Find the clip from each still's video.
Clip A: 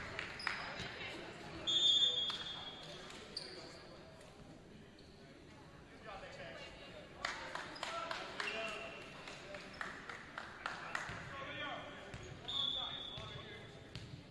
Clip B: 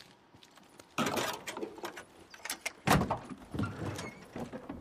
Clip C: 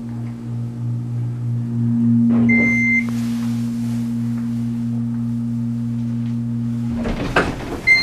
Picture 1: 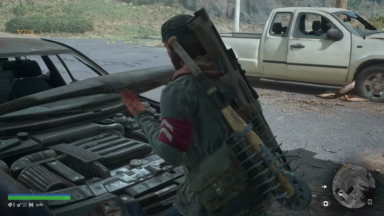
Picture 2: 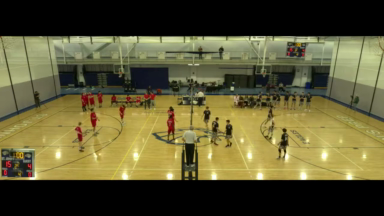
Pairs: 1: B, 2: A